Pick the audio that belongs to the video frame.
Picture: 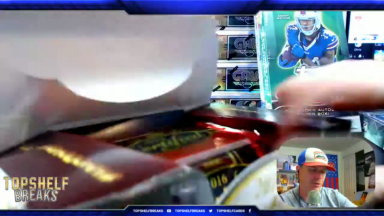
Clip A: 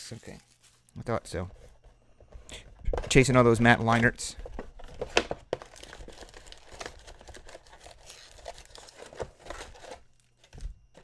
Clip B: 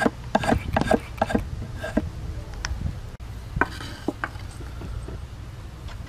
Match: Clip A